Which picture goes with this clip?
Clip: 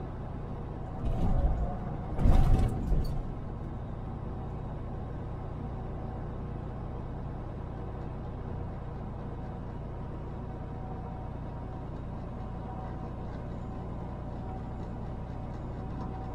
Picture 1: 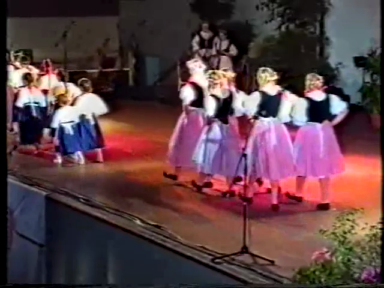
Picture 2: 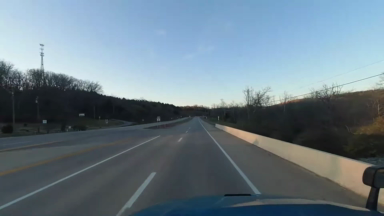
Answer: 2